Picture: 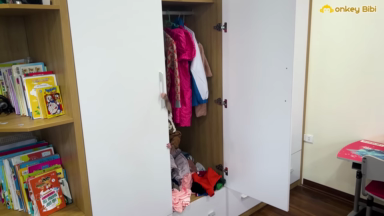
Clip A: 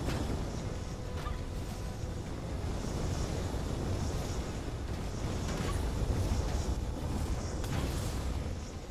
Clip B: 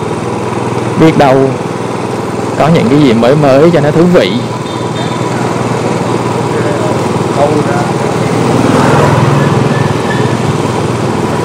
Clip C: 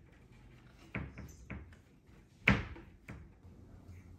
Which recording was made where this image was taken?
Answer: C